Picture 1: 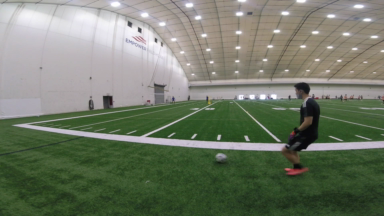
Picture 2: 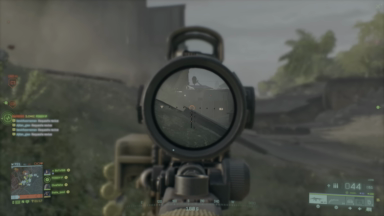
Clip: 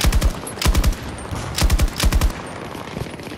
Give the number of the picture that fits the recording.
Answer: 2